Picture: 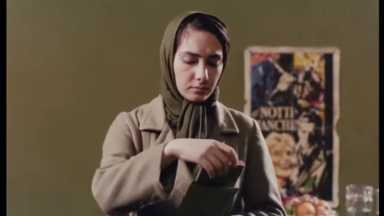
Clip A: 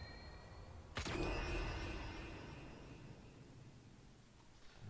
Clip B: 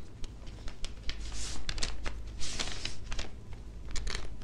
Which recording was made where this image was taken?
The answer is B